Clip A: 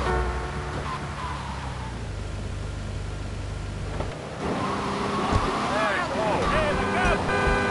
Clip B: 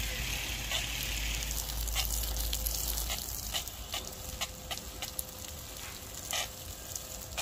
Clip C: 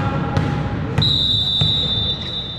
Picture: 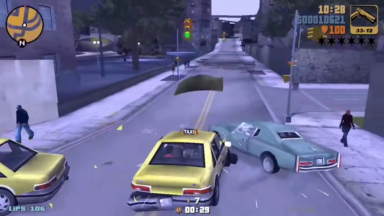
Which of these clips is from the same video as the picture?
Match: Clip A